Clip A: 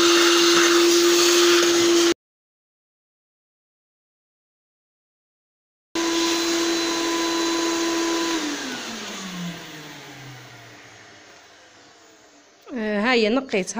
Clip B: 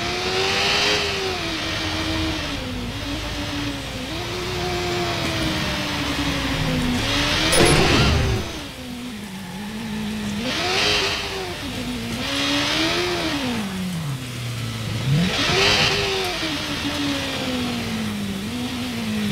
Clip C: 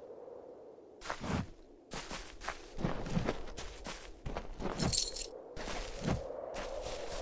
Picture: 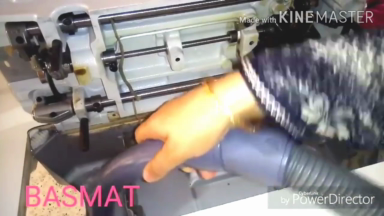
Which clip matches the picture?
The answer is A